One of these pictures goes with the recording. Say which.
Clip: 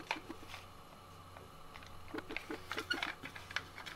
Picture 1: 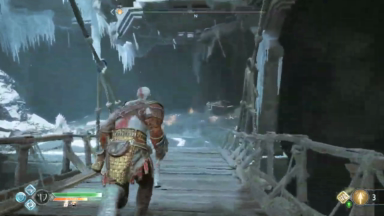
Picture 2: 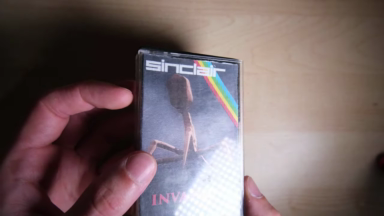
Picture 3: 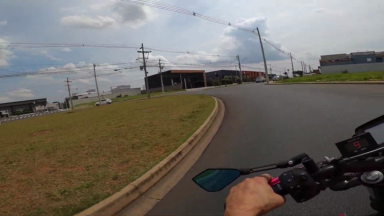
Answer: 2